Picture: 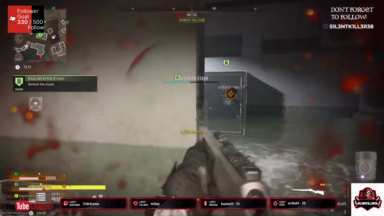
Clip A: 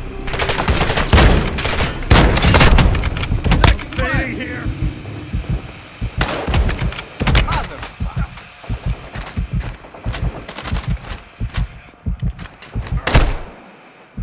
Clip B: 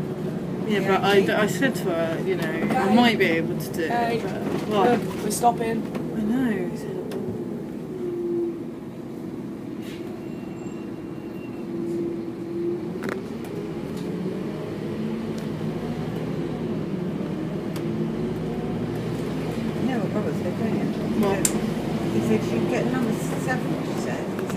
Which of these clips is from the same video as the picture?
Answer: A